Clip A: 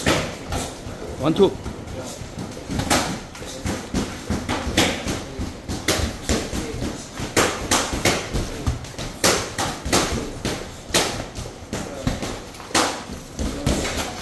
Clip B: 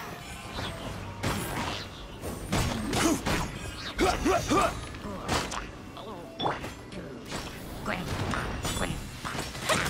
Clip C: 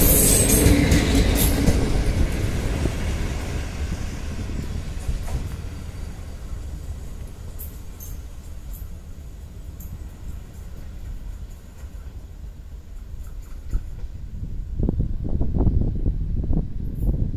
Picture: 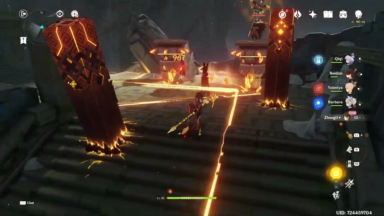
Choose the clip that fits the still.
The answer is B